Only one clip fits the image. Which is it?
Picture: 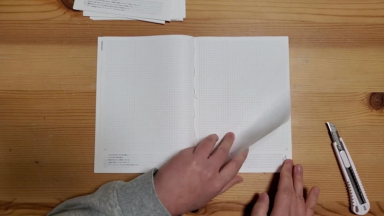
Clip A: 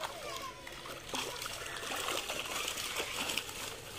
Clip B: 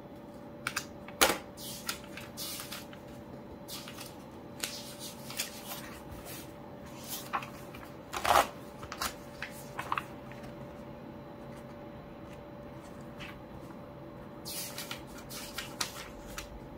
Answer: B